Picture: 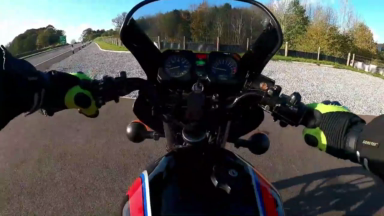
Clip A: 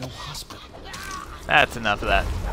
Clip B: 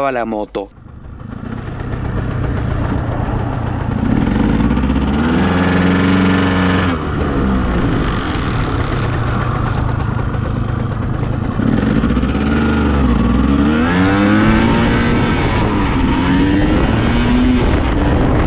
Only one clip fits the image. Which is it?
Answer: B